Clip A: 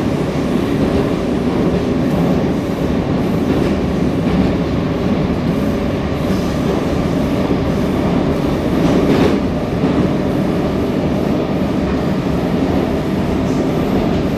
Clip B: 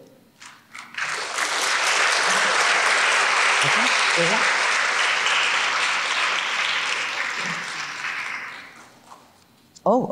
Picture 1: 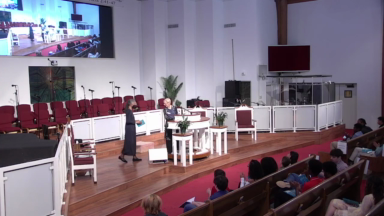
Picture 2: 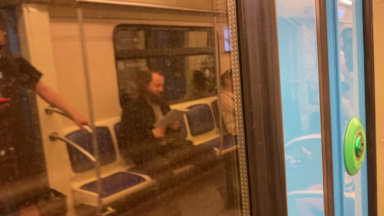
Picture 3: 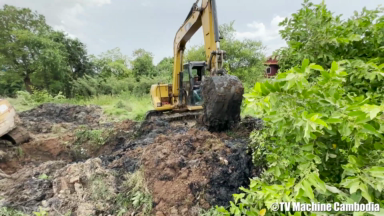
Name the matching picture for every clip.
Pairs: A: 2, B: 1